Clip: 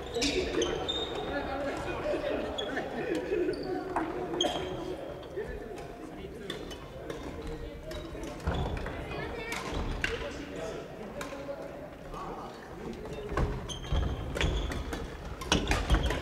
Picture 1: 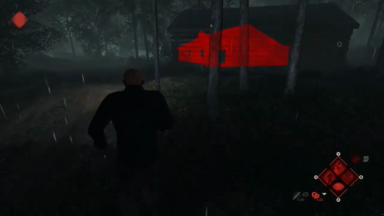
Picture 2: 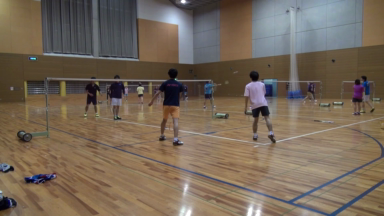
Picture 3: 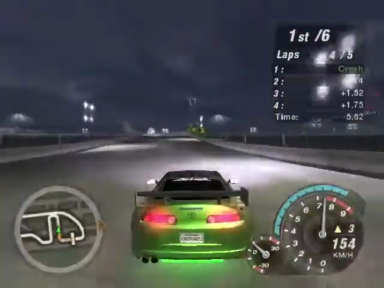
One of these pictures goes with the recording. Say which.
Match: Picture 2